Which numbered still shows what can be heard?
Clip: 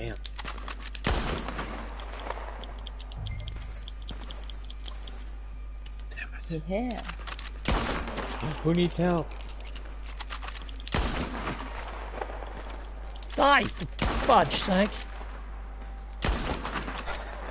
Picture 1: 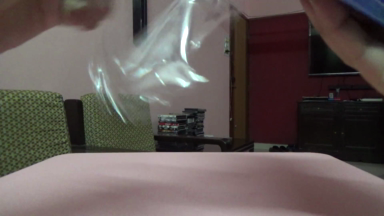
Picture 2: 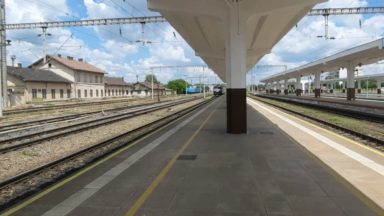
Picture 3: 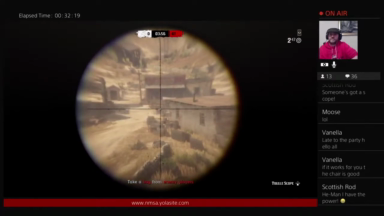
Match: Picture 3